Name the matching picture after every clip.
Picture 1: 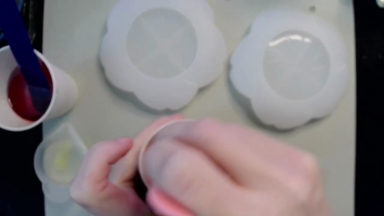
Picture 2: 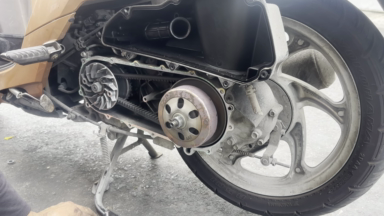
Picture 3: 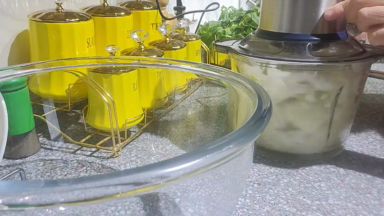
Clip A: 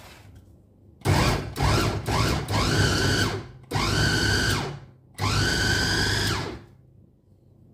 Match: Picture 3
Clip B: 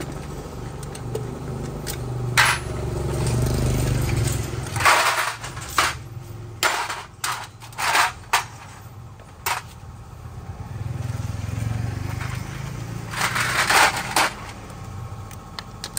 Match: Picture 2